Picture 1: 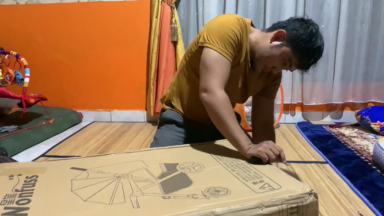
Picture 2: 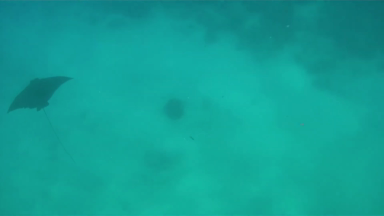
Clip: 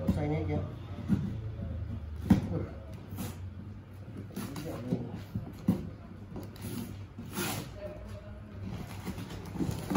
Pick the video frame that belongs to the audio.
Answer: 1